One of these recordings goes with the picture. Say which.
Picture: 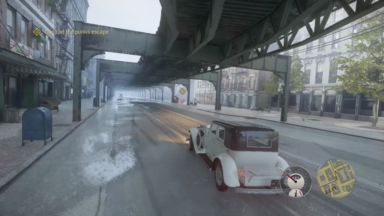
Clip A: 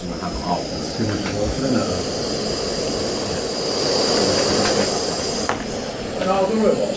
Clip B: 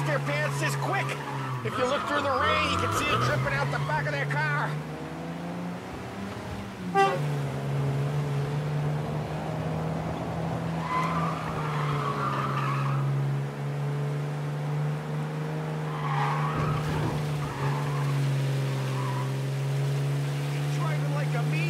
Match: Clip B